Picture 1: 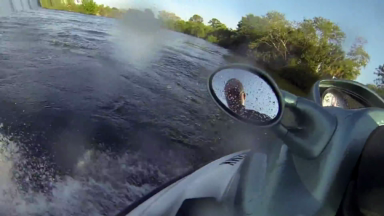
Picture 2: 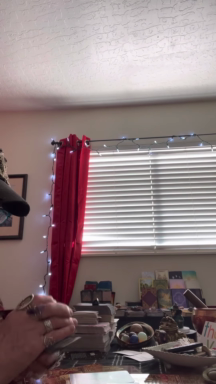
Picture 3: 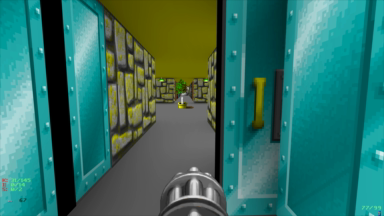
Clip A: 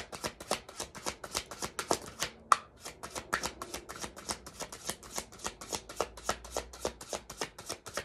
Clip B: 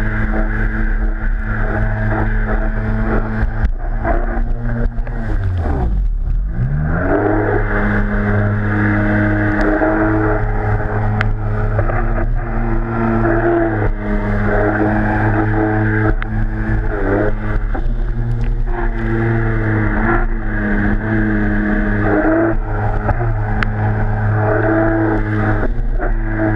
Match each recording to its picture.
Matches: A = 2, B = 1